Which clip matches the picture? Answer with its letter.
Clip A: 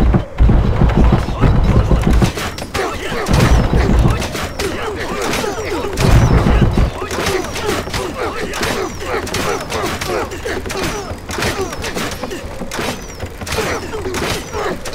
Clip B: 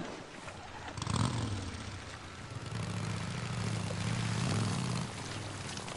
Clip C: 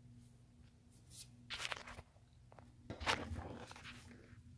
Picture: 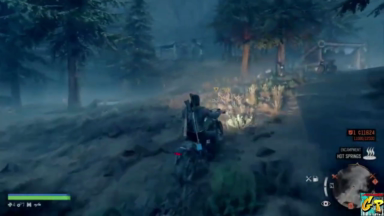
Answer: B